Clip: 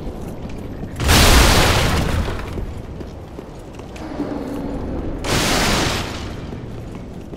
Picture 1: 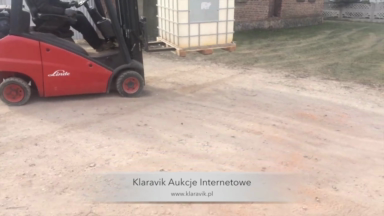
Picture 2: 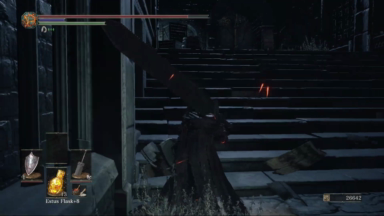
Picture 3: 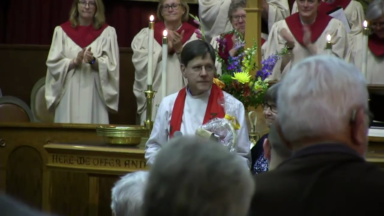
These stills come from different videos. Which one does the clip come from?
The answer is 2